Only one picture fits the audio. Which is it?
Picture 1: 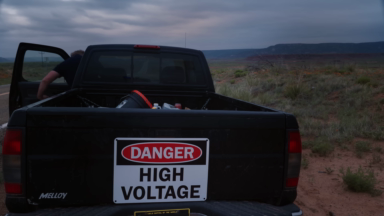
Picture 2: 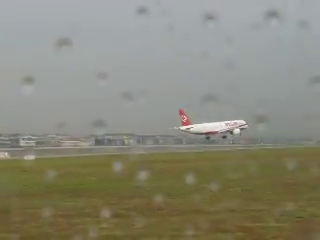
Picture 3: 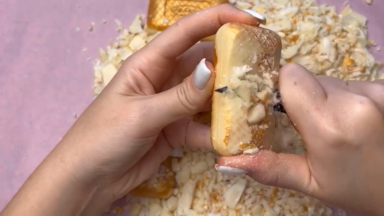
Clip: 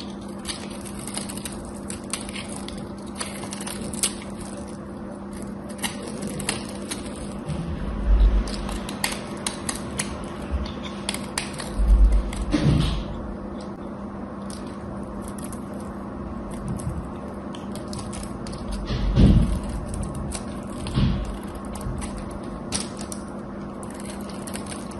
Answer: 3